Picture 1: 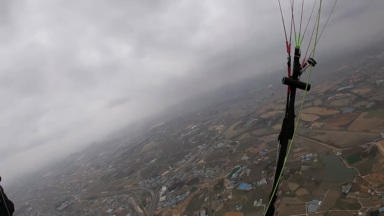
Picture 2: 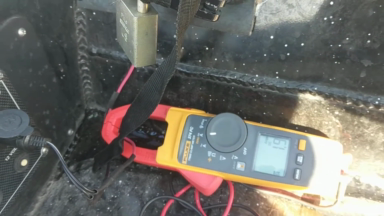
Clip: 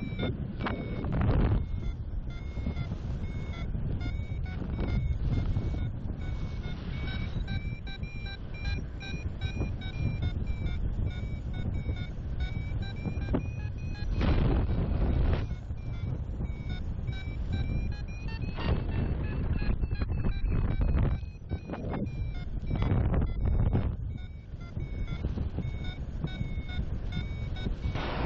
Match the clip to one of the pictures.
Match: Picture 1